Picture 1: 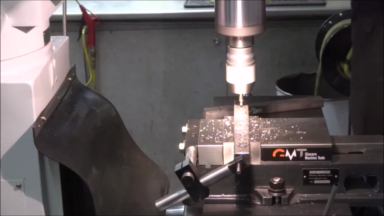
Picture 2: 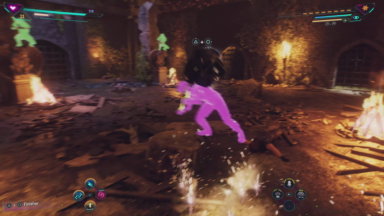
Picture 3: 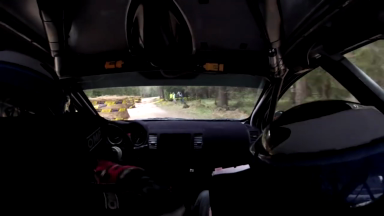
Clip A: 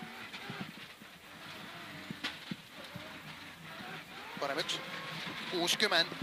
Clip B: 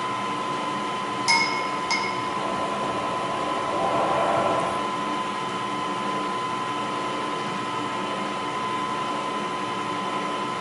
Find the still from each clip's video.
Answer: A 3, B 1